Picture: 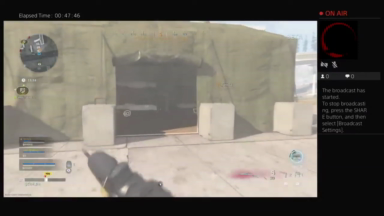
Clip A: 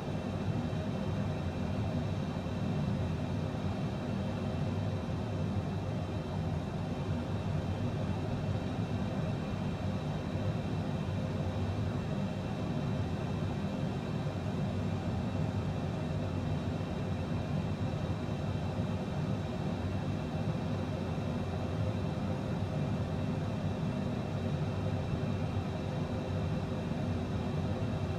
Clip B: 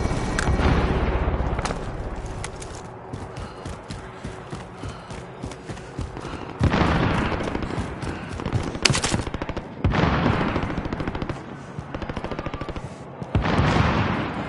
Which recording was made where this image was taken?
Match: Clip B